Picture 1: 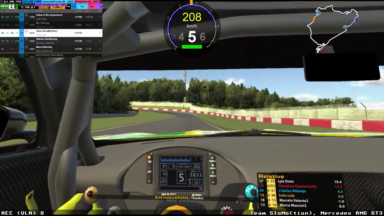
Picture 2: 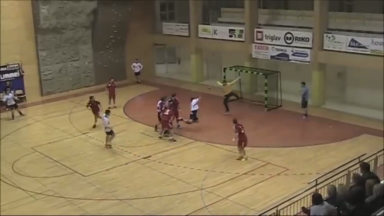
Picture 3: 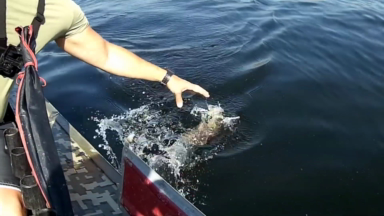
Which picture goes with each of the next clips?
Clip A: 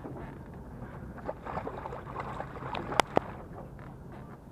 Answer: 3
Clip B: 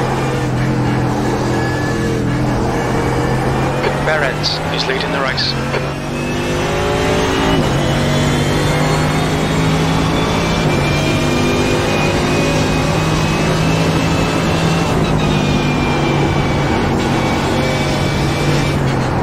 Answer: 1